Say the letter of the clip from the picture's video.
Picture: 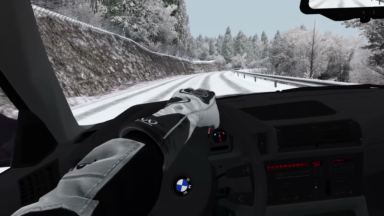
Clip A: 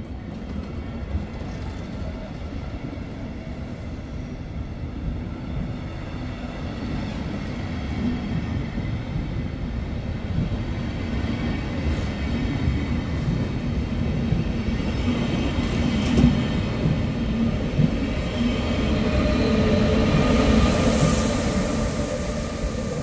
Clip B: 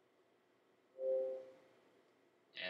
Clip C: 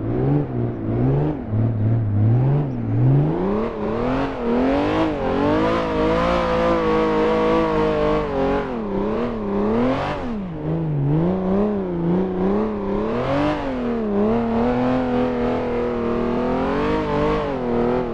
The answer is C